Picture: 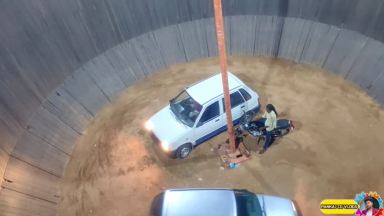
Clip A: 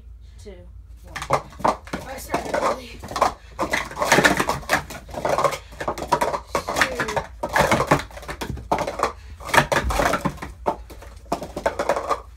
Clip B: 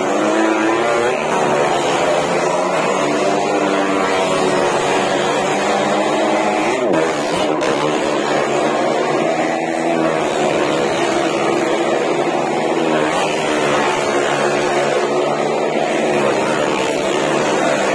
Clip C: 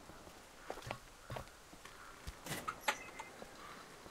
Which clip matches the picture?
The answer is B